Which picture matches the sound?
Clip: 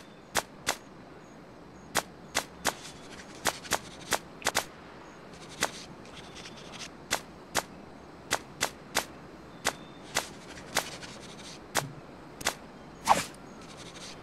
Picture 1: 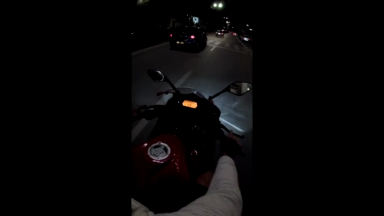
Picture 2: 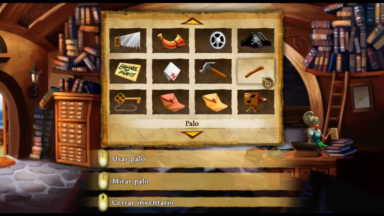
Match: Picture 2